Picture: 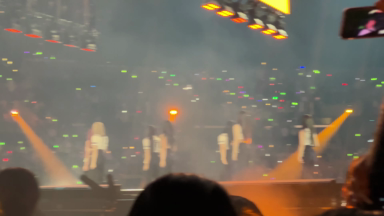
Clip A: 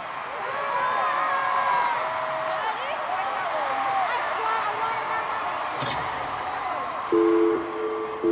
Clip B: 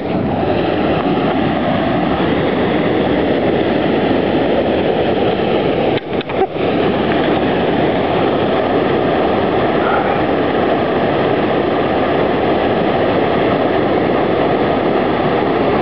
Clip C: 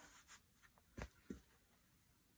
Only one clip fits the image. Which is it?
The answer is A